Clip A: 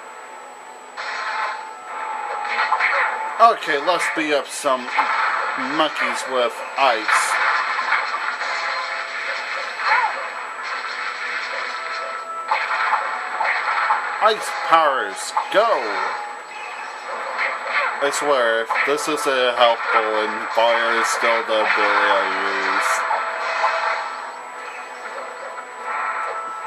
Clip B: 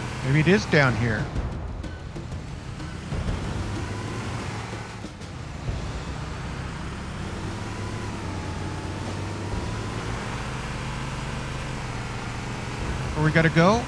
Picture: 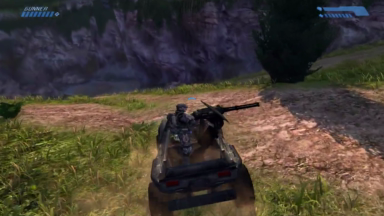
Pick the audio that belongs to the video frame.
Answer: B